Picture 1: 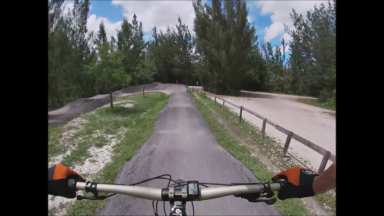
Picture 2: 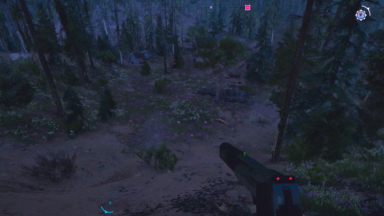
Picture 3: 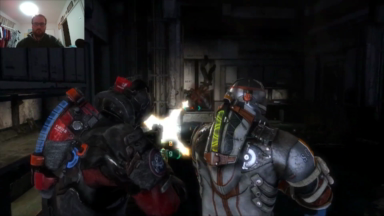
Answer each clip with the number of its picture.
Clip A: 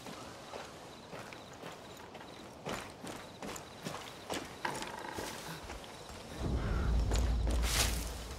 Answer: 2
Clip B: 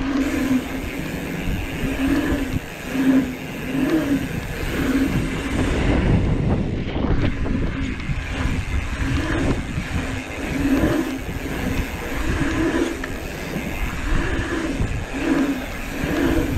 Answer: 1